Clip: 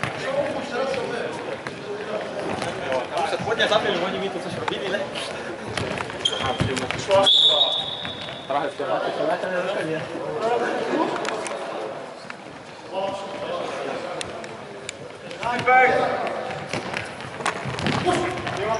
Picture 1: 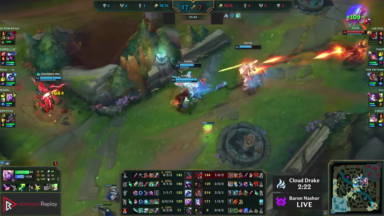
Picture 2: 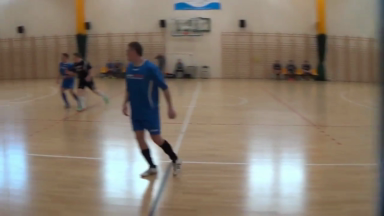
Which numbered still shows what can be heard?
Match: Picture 2